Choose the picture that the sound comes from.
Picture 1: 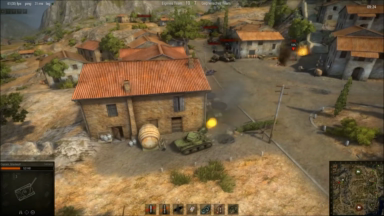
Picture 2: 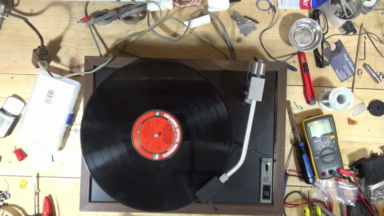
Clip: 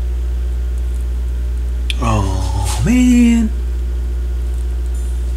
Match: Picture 2